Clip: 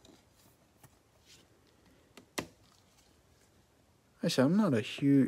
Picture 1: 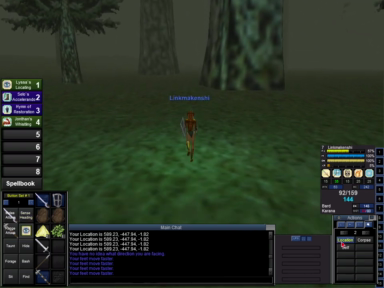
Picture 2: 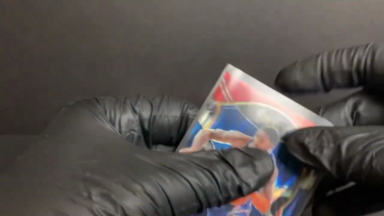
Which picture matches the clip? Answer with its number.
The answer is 2